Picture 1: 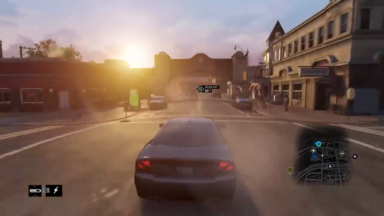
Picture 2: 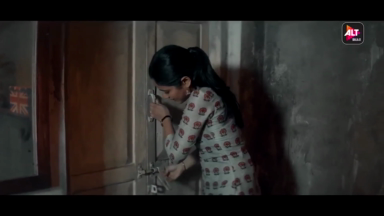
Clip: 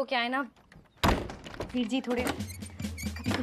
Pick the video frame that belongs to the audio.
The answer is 2